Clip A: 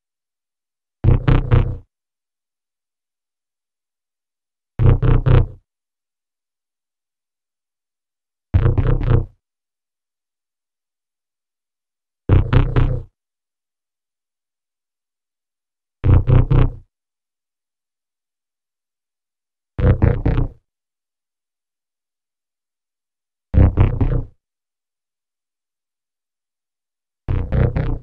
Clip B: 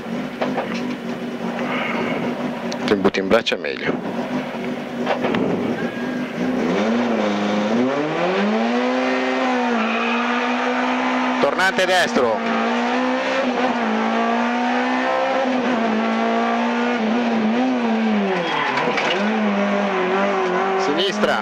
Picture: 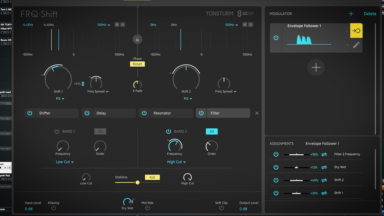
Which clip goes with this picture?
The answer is A